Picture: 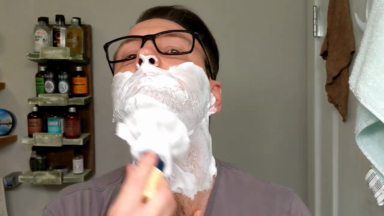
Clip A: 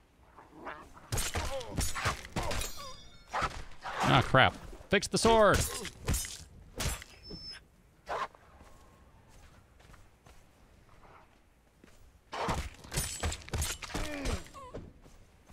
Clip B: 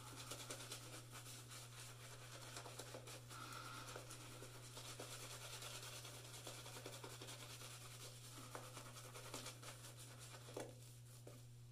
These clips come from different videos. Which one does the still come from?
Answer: B